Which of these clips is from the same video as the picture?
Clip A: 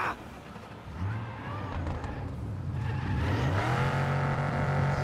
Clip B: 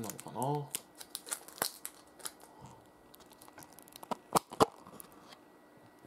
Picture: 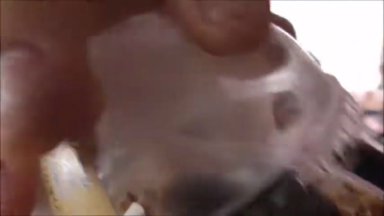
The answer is B